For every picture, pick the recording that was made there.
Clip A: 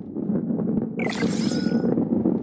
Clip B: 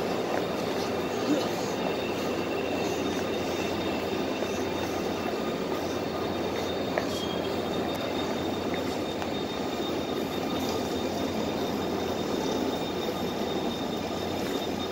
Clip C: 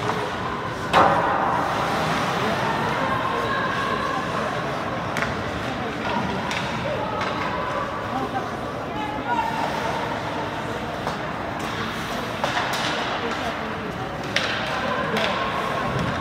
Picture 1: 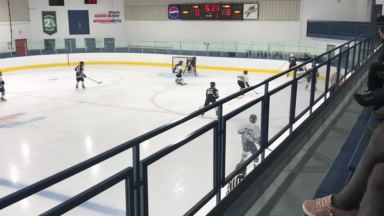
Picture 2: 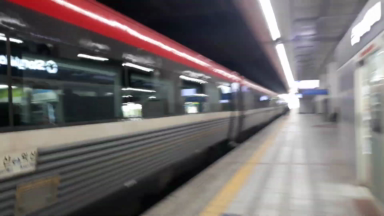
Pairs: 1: C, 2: B